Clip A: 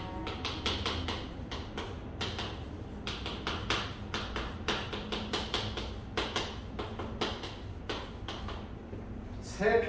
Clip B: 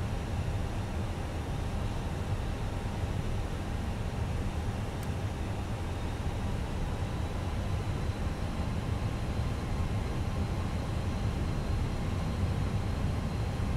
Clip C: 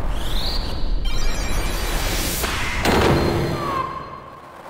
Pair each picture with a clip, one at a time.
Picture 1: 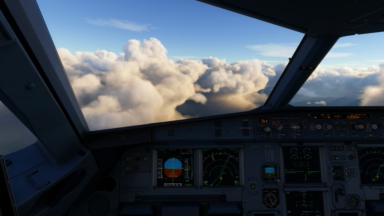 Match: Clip B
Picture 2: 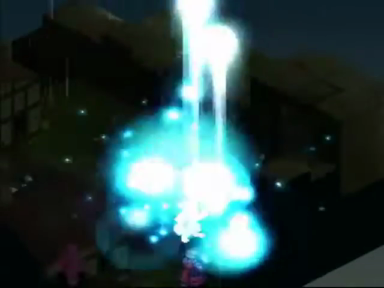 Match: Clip C